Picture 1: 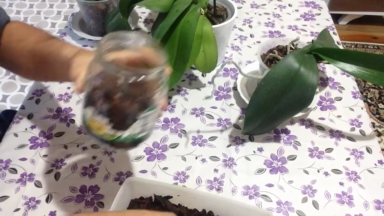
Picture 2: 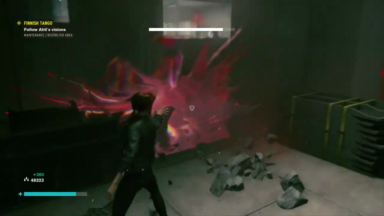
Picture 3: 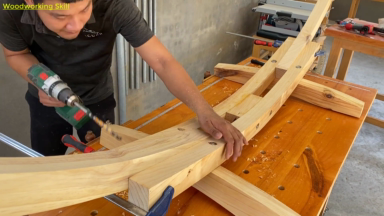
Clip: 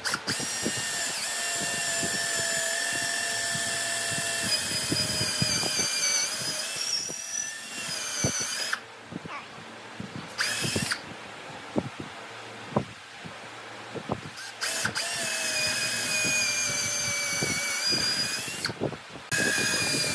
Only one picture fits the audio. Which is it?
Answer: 3